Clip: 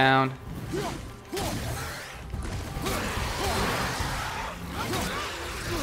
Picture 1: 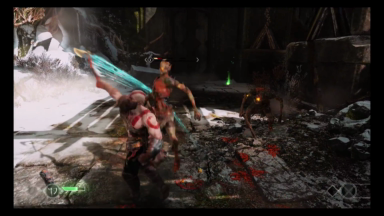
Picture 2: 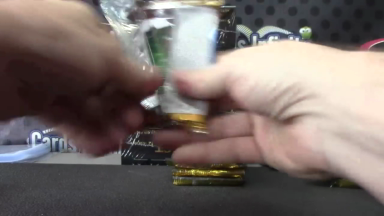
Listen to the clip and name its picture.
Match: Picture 1